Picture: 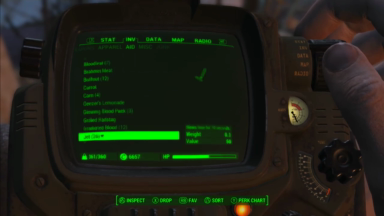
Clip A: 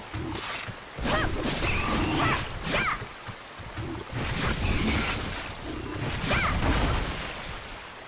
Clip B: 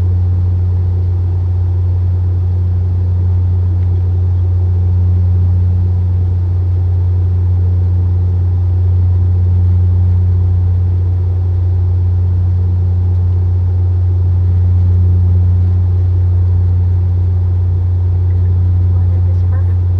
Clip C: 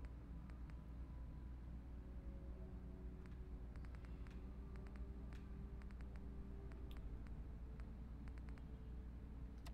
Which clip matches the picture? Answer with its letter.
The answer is C